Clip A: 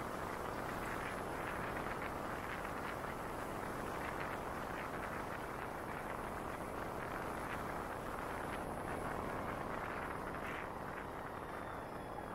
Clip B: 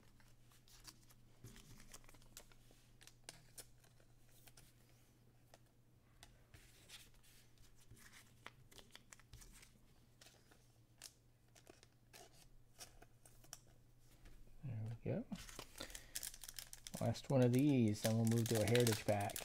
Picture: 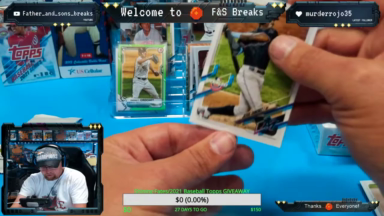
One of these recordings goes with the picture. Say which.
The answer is B